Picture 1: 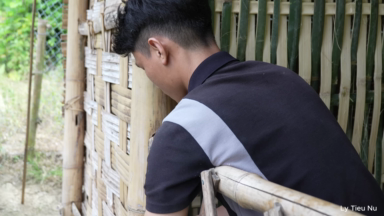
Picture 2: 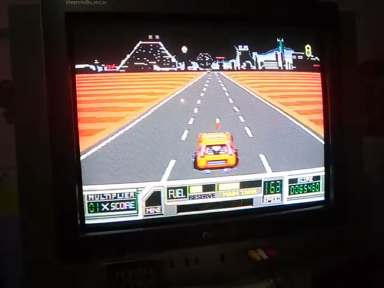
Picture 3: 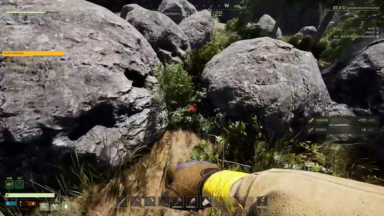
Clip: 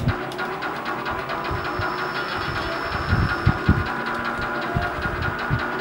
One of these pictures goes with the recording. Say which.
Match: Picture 2